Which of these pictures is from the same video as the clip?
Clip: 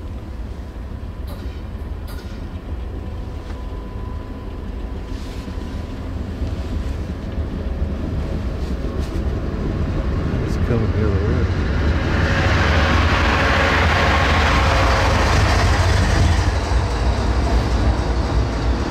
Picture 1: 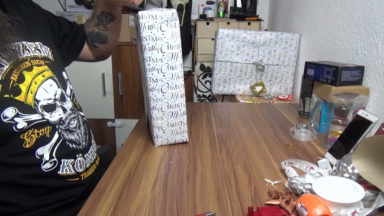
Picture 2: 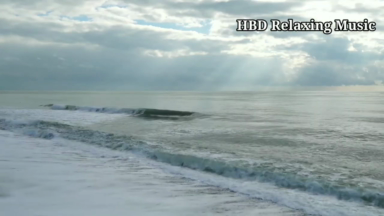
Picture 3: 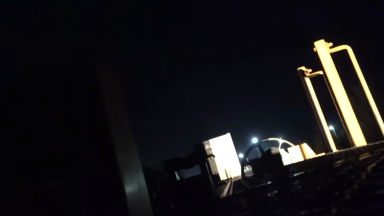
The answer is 3